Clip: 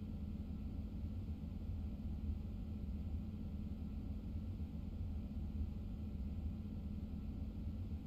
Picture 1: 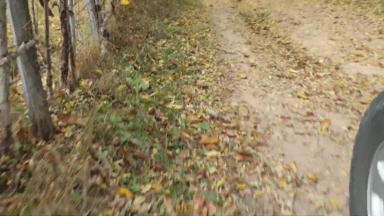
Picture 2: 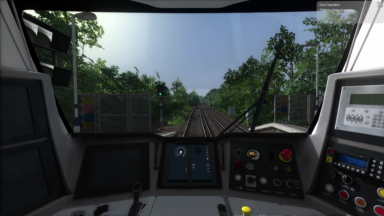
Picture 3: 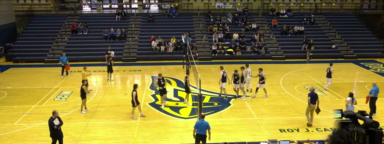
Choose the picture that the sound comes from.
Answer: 2